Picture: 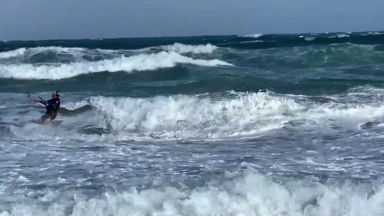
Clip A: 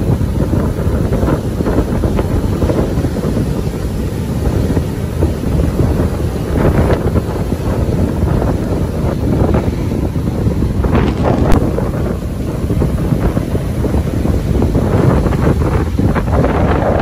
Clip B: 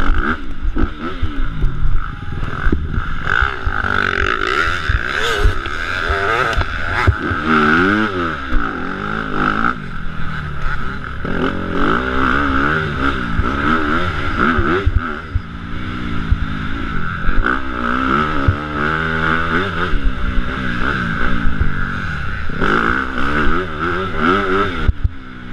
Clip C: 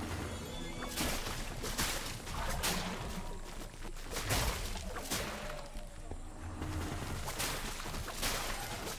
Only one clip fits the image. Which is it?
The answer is A